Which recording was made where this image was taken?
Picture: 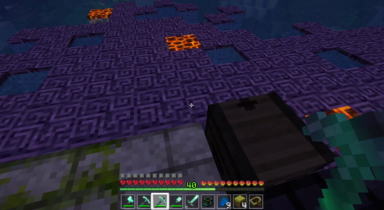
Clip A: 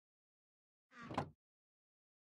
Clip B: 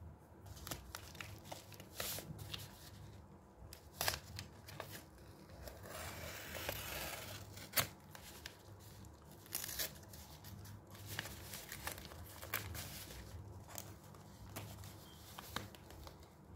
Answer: A